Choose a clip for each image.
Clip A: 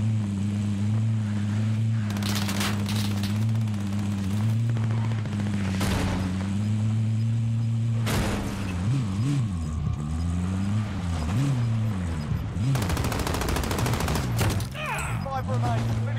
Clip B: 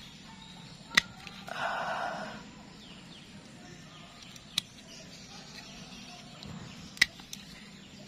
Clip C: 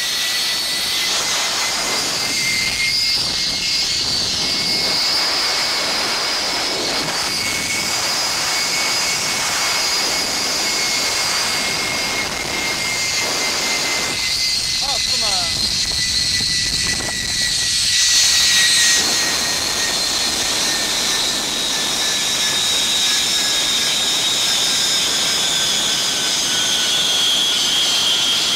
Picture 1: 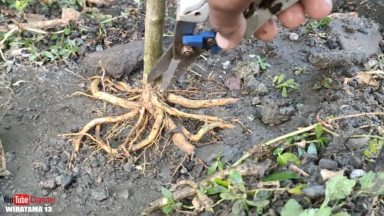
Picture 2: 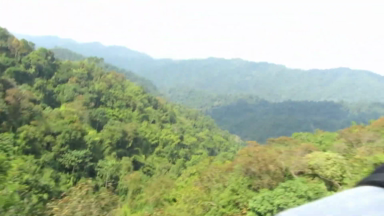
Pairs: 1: B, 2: C